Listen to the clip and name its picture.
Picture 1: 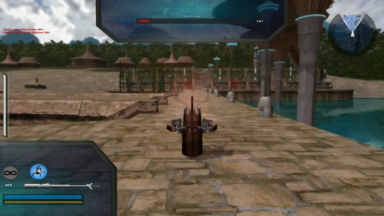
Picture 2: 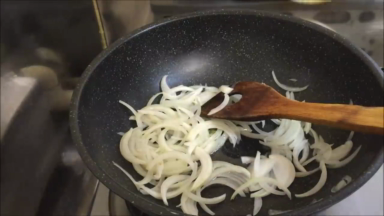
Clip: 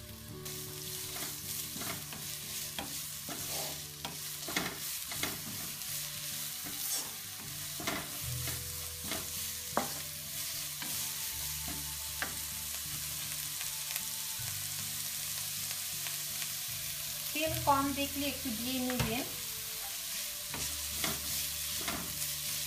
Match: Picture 2